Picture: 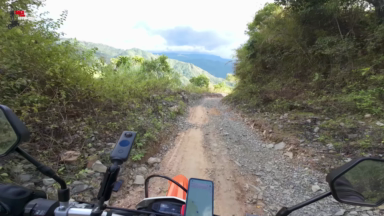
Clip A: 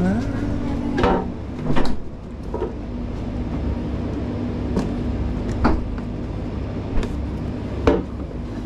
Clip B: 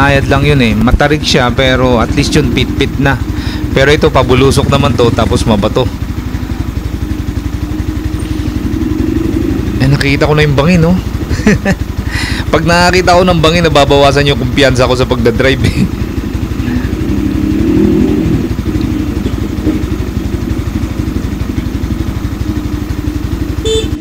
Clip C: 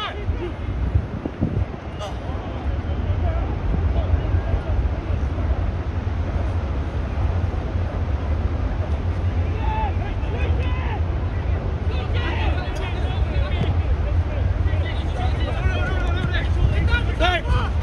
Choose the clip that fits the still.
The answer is B